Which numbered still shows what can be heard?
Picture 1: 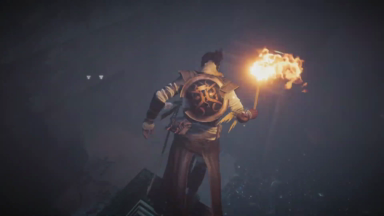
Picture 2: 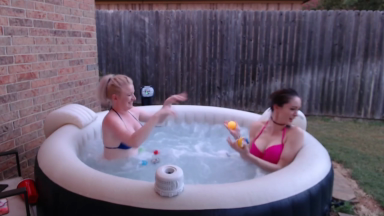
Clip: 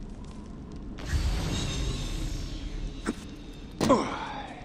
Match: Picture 1